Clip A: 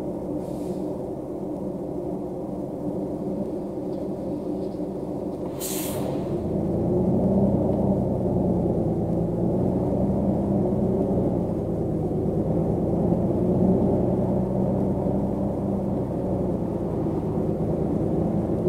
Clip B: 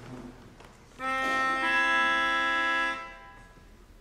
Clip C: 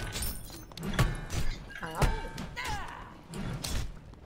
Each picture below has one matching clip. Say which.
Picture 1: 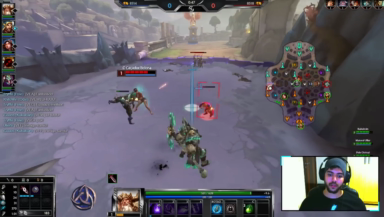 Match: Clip C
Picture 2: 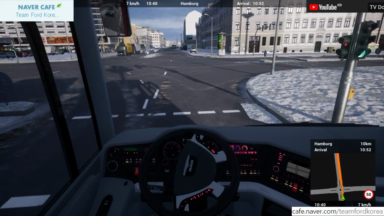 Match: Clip A